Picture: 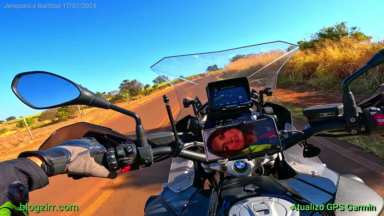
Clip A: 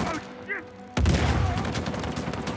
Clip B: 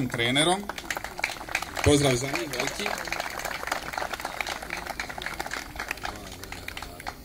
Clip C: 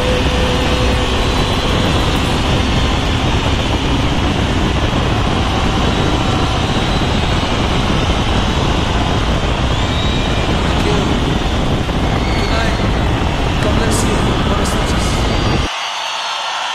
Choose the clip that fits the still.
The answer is C